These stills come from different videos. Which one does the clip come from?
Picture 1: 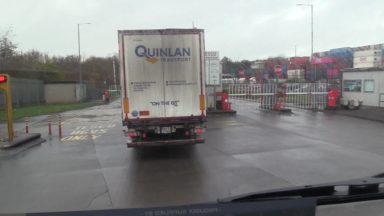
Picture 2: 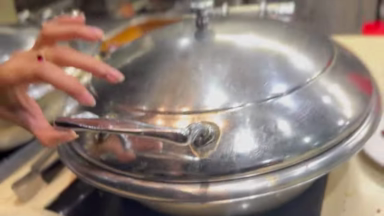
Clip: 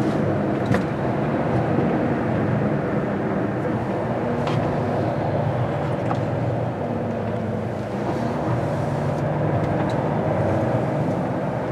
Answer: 1